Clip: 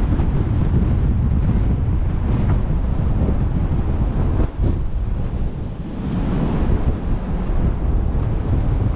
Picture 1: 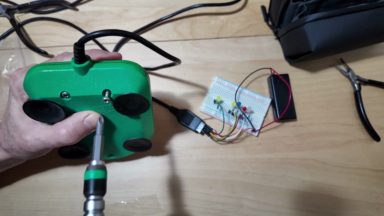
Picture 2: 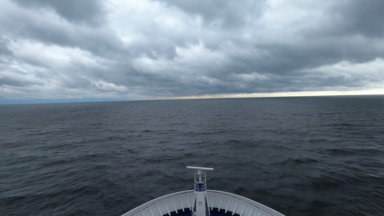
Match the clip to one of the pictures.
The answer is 2